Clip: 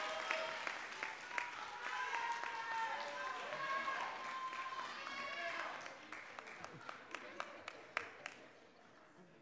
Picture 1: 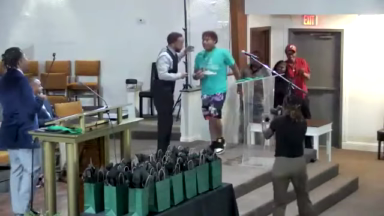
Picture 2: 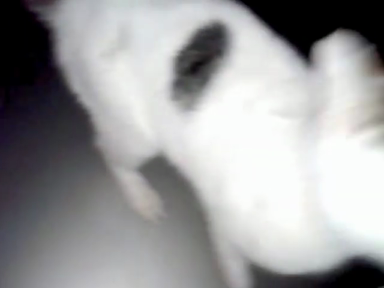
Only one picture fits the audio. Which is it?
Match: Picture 1